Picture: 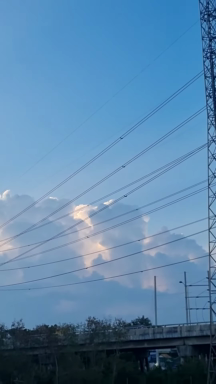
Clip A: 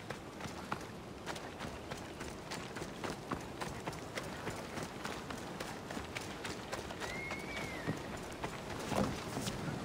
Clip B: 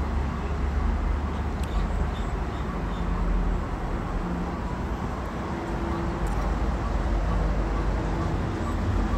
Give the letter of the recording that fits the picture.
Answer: B